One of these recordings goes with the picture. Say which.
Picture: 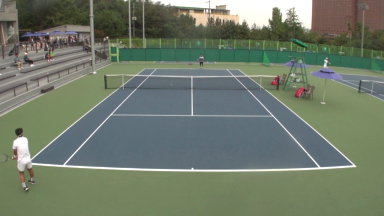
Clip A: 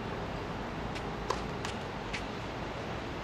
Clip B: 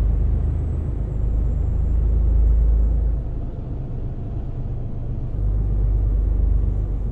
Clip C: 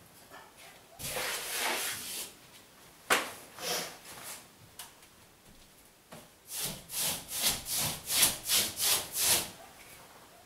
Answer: A